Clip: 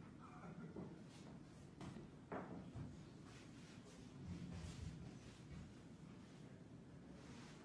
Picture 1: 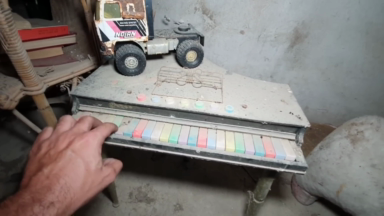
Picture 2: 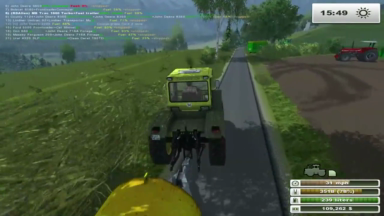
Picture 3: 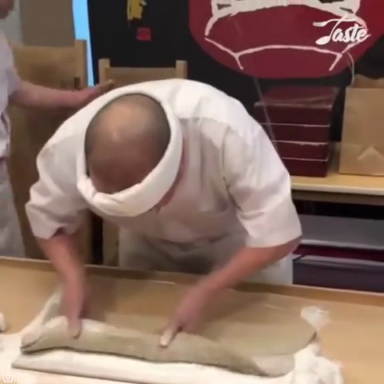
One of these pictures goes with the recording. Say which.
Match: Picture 3